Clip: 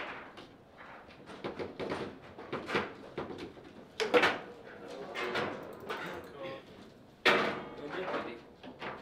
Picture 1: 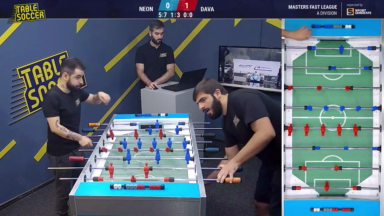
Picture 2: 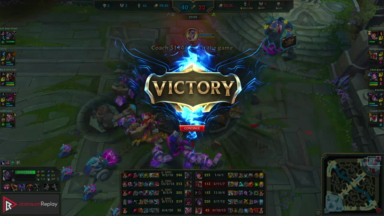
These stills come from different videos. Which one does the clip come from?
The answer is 1